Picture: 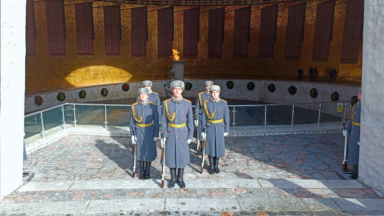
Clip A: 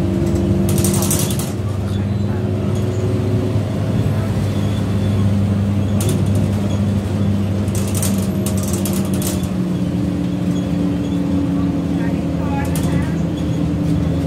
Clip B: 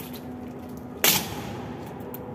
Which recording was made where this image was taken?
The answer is B